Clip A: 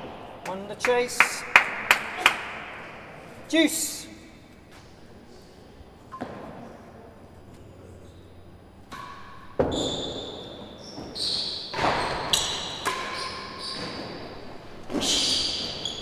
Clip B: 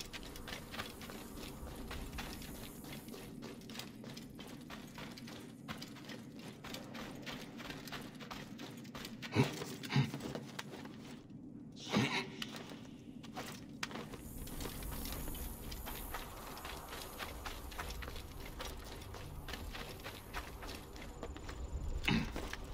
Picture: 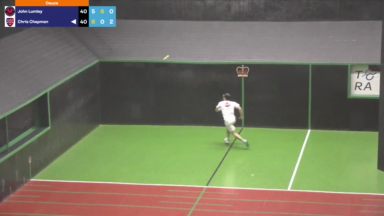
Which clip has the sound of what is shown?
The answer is A